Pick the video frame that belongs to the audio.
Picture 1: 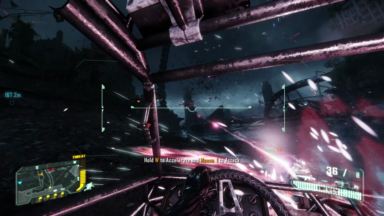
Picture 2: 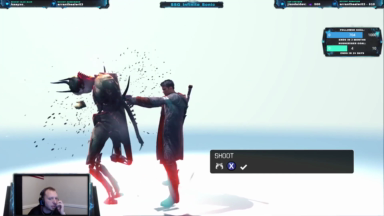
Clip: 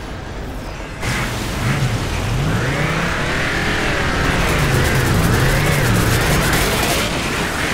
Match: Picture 1